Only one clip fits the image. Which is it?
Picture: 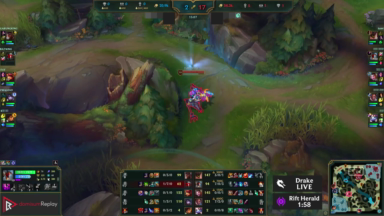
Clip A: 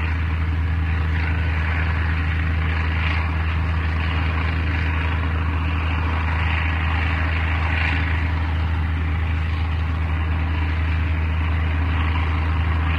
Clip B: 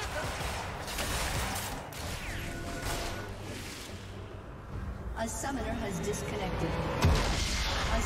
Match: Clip B